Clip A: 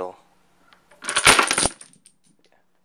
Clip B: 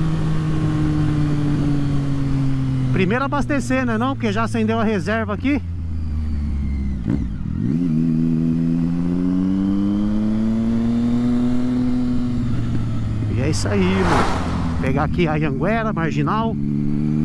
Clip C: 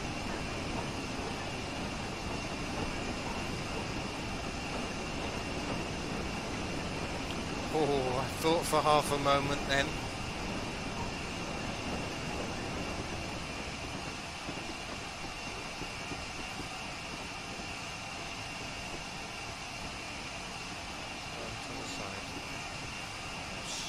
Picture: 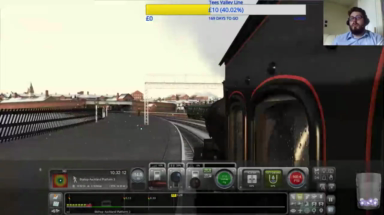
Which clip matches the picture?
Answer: C